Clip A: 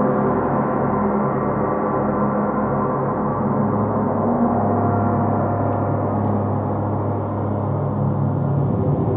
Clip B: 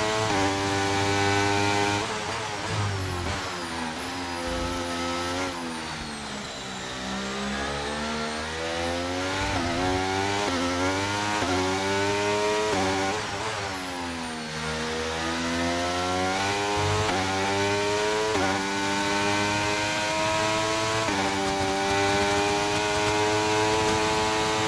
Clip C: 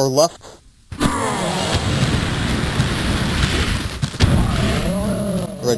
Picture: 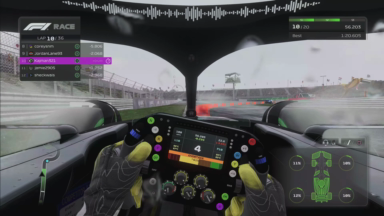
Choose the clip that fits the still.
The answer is B